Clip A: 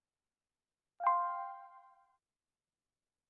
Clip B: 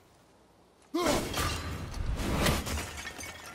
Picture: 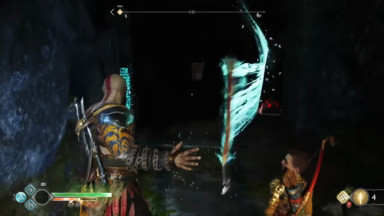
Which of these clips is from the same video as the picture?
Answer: B